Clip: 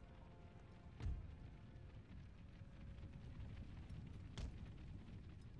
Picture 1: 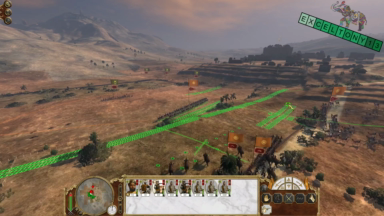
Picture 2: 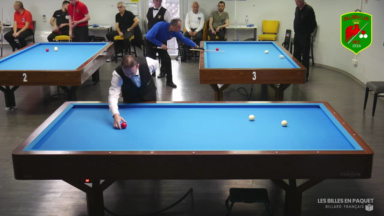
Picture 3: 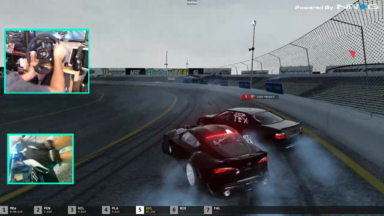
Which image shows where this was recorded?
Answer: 1